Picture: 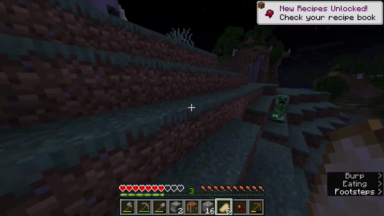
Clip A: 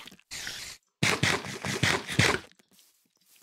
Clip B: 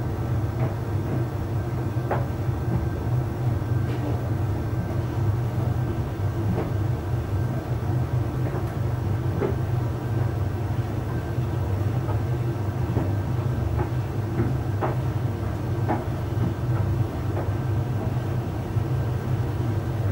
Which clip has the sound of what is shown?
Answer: A